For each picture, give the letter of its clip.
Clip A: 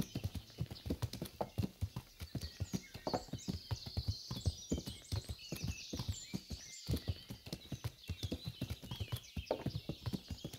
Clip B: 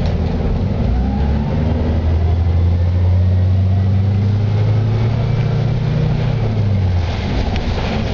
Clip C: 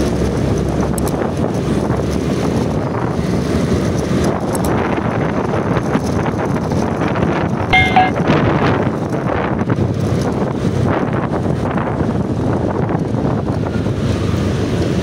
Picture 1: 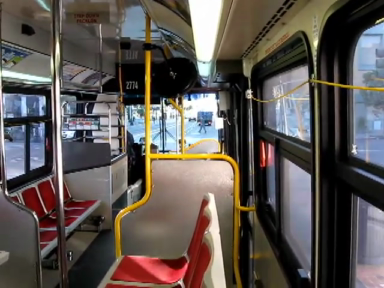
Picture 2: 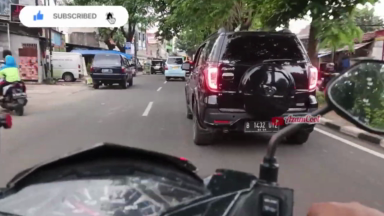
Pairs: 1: B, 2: C